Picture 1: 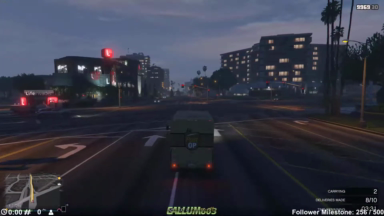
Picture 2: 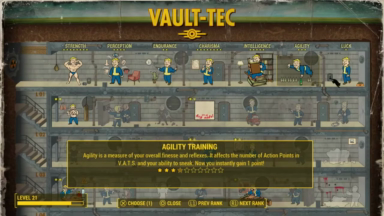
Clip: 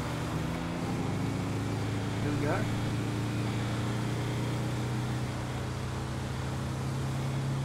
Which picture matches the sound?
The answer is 1